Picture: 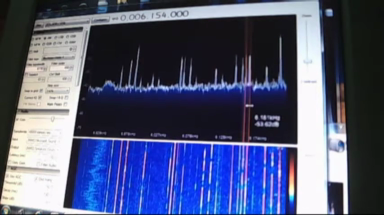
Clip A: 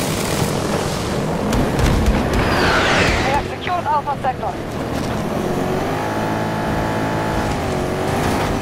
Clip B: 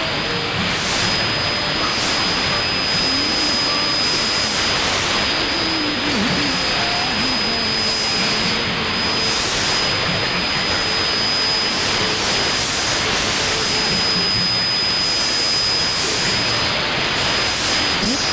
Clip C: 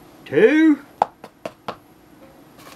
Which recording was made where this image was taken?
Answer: B